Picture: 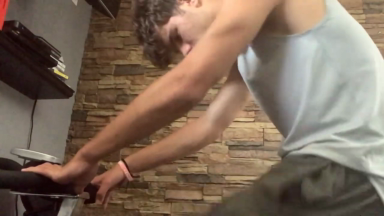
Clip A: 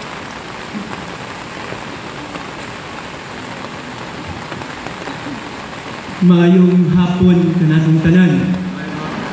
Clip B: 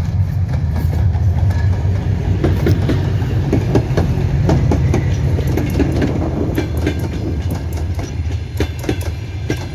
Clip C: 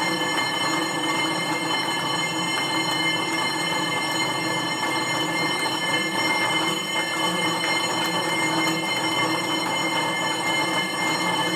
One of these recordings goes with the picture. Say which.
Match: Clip C